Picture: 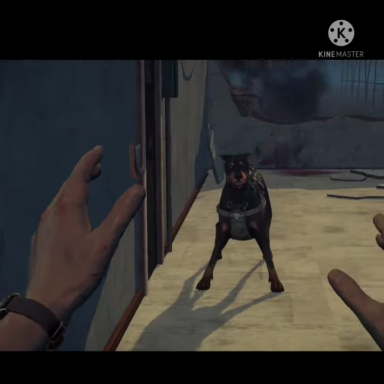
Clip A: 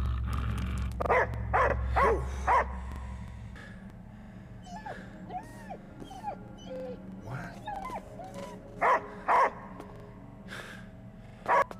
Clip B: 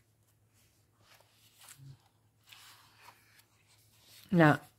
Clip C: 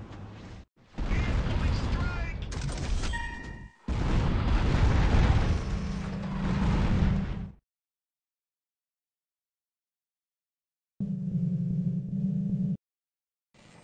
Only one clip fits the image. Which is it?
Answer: A